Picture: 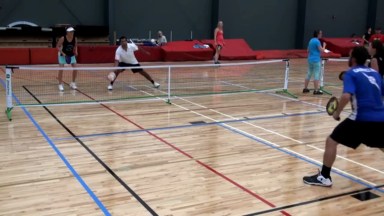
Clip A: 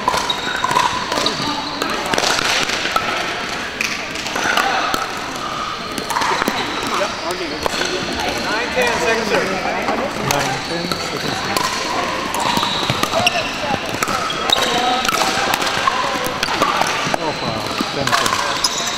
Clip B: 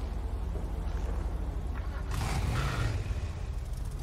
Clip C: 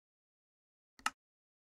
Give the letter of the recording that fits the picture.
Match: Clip A